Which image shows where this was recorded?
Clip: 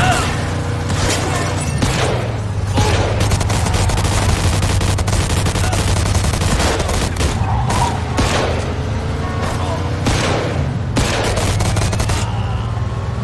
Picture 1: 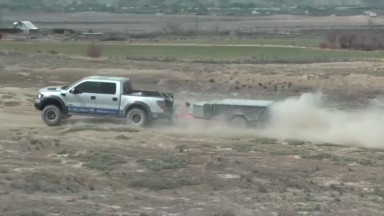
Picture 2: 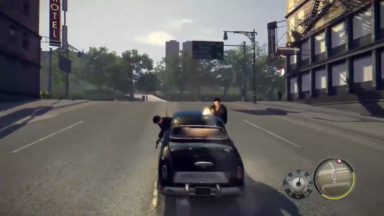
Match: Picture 2